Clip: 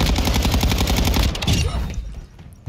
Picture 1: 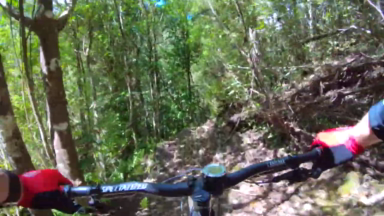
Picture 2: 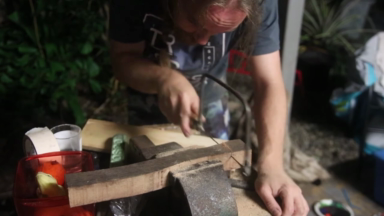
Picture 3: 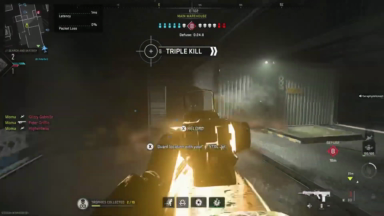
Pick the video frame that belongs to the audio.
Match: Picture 3